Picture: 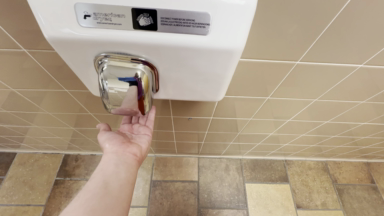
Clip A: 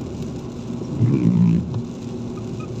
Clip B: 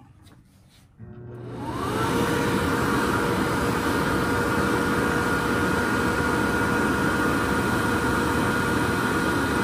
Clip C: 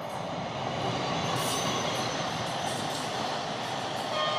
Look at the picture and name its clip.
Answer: B